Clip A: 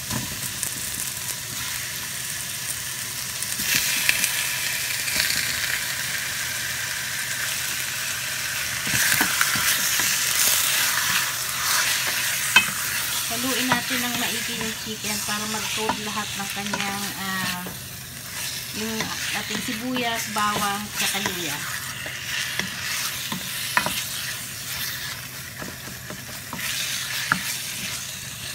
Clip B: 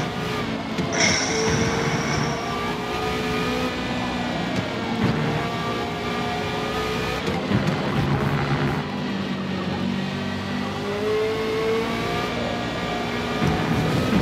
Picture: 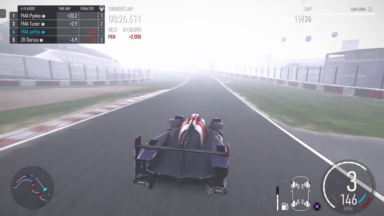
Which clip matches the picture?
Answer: B